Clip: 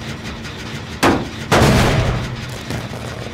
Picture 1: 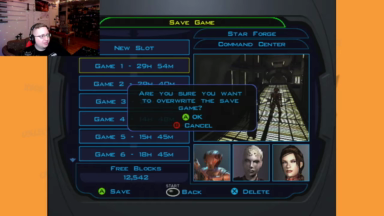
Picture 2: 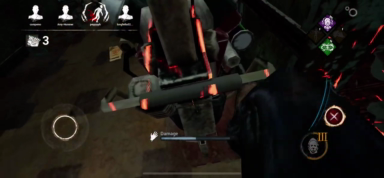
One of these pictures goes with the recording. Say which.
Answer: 2